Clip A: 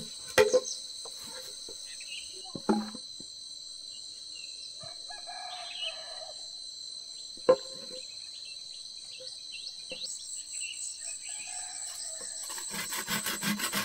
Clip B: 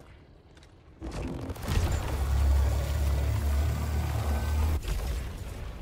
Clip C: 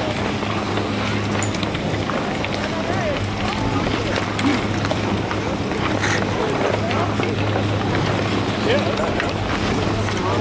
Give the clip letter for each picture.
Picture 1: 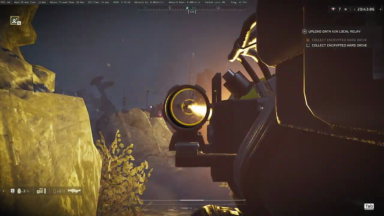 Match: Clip B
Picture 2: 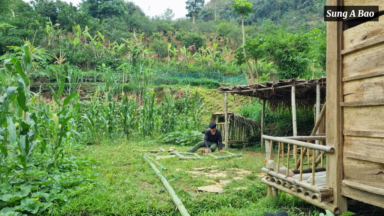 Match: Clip A